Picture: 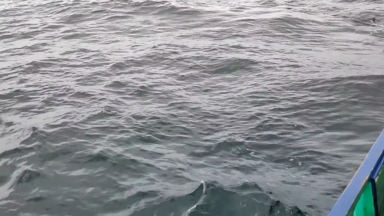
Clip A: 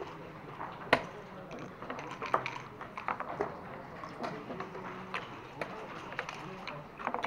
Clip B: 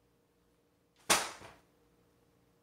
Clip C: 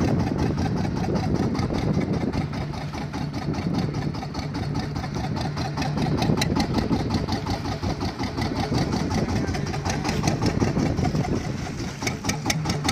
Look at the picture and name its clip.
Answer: C